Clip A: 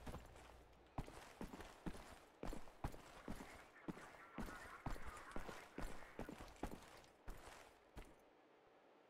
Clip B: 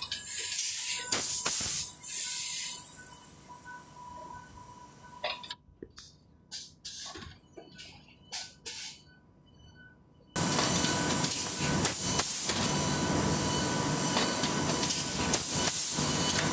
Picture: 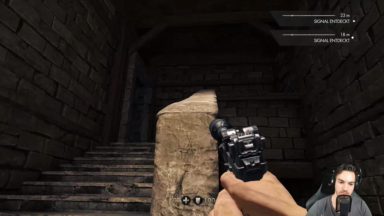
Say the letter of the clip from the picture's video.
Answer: A